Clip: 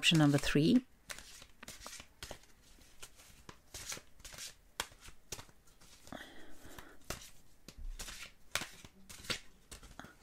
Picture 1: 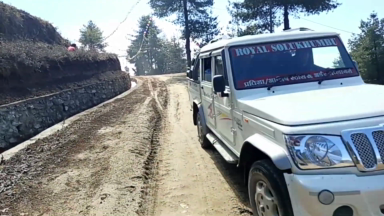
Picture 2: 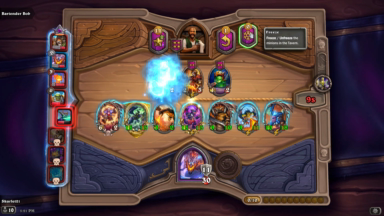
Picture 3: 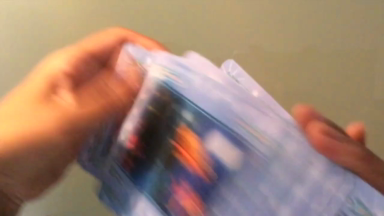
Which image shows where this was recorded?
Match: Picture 3